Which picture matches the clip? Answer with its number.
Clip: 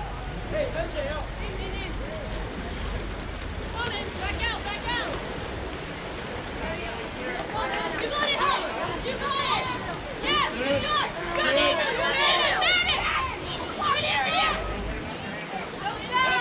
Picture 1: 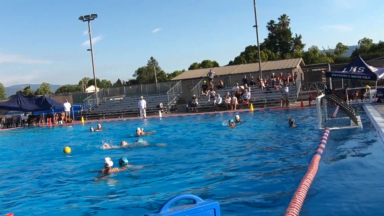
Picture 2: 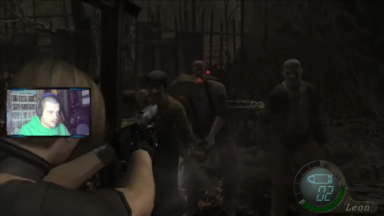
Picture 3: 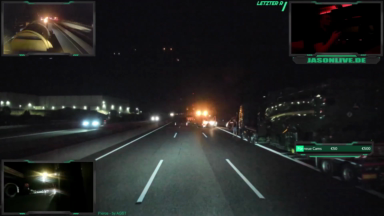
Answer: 1